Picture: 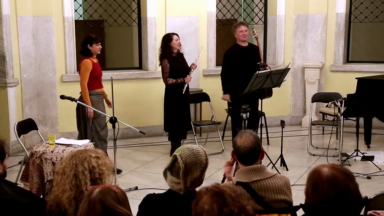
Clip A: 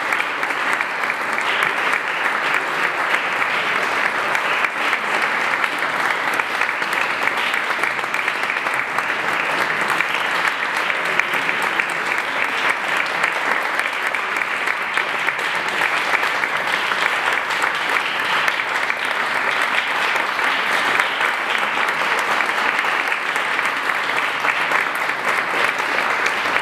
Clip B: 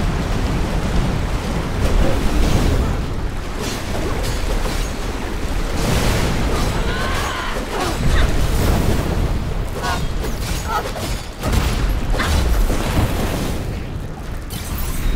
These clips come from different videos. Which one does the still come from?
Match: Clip A